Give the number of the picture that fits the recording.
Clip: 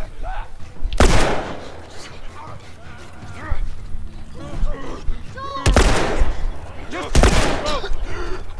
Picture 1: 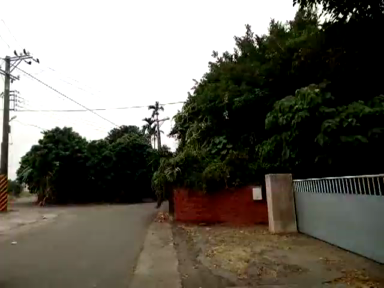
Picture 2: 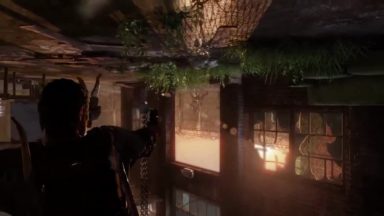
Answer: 2